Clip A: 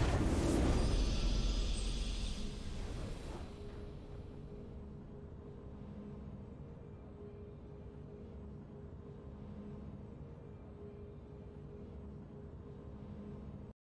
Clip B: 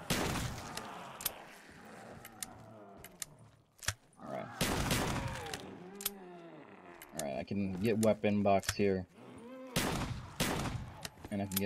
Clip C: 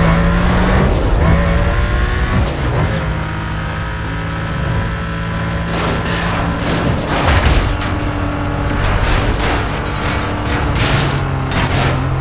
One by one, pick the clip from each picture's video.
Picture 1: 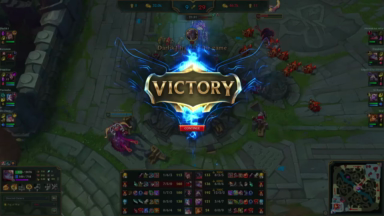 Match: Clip A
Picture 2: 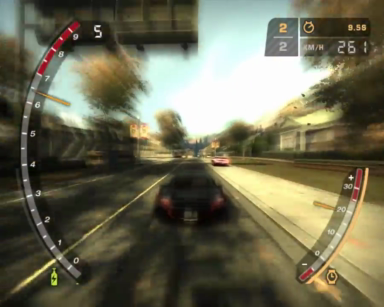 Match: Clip C